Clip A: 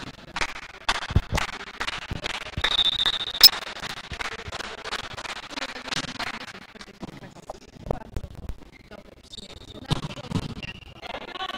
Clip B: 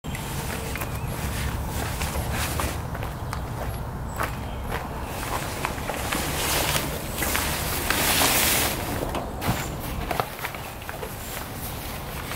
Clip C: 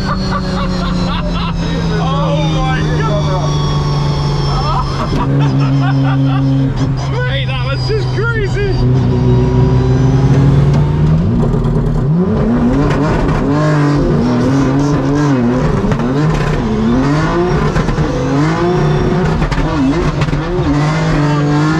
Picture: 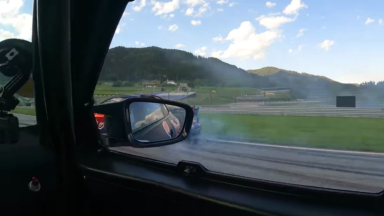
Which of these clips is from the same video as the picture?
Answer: C